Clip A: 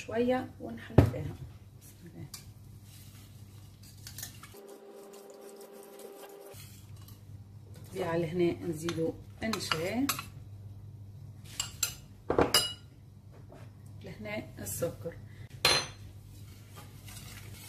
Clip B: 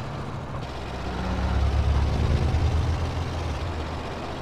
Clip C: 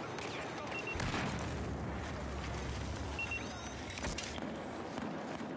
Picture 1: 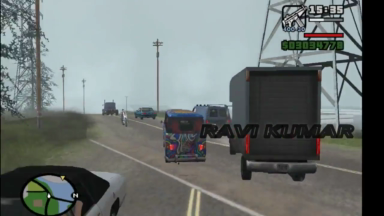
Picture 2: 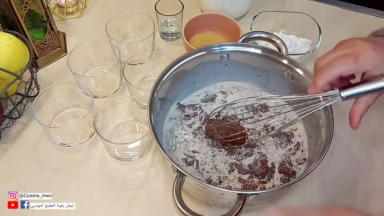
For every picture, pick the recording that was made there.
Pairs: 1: B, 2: A